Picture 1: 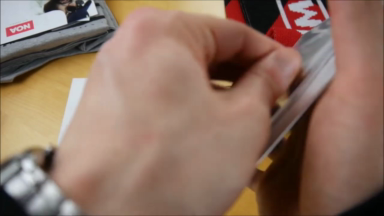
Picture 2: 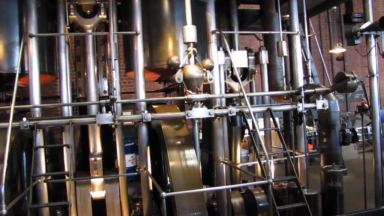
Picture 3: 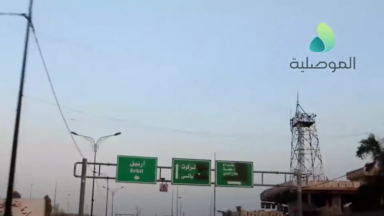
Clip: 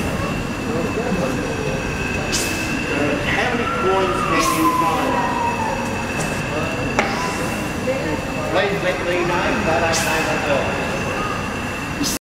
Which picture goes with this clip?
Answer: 2